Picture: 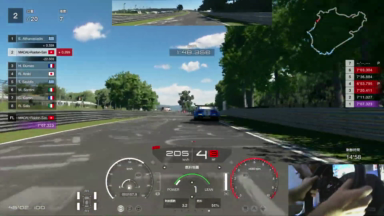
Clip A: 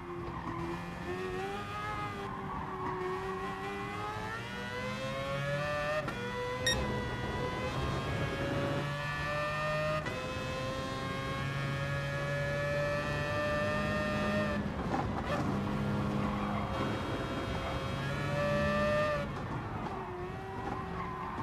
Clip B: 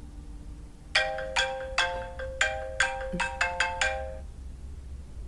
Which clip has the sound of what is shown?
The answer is A